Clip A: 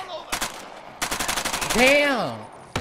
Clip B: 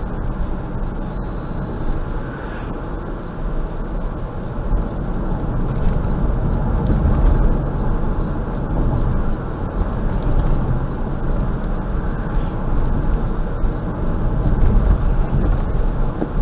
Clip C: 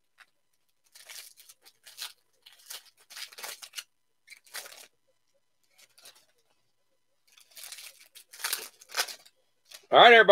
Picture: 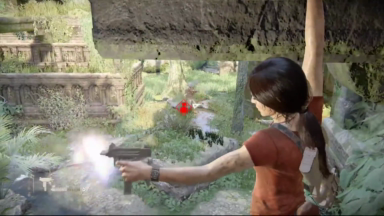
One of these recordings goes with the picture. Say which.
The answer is A